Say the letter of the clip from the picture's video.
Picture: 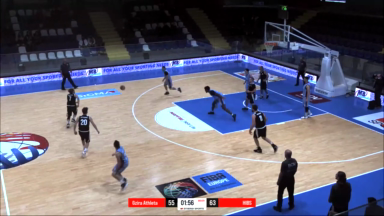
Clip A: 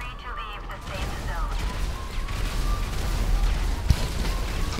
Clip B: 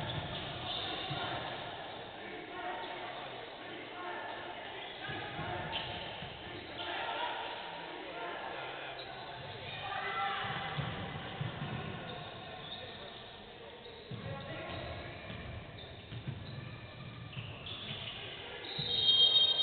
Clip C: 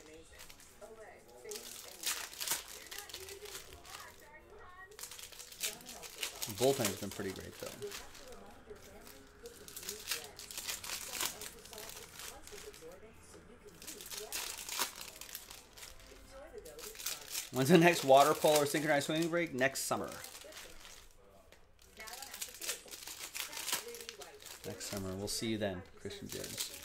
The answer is B